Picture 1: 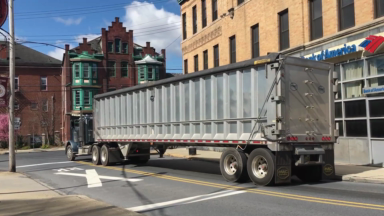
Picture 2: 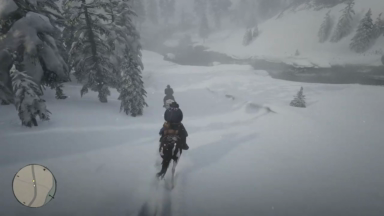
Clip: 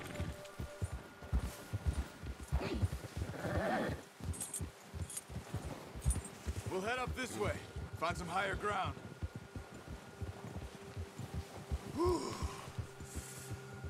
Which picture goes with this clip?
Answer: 2